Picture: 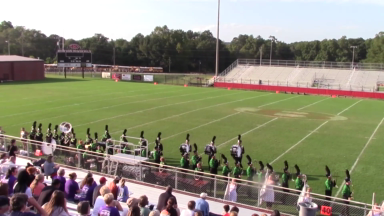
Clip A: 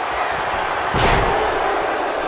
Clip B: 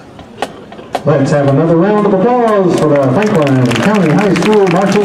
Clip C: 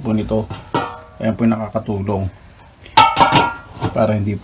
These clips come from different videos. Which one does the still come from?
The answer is B